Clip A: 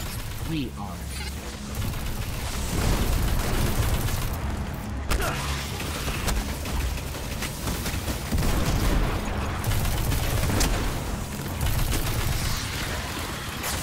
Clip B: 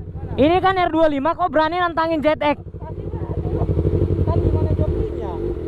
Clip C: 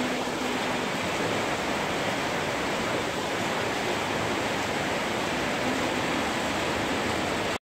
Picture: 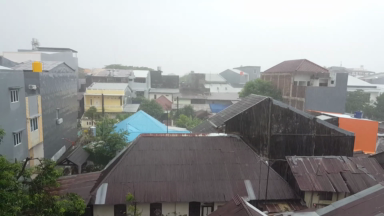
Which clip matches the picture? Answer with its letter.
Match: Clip C